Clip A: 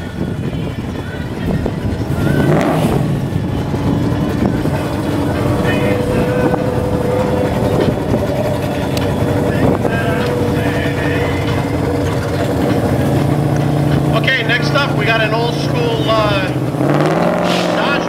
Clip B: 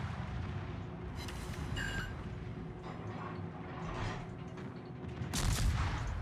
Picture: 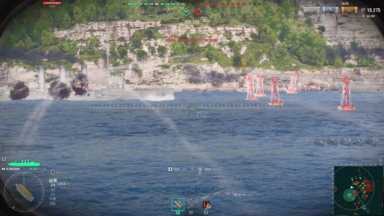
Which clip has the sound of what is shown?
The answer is B